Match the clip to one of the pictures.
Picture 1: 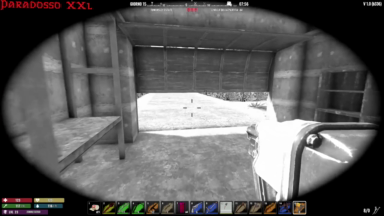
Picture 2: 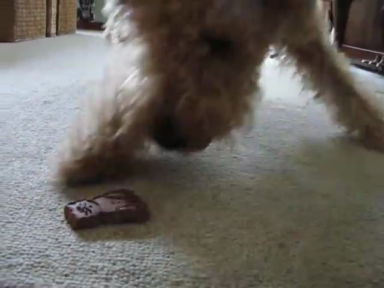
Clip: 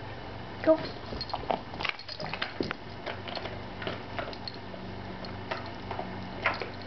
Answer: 2